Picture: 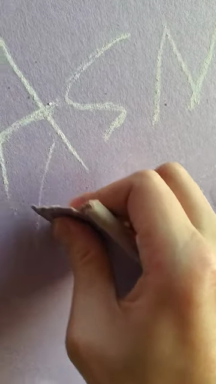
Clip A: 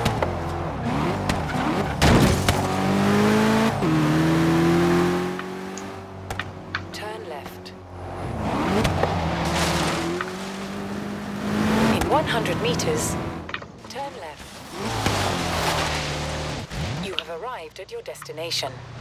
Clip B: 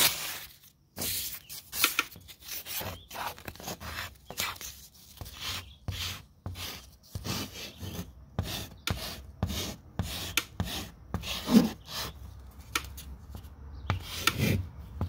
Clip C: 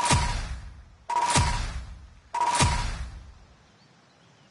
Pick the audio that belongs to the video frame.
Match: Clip B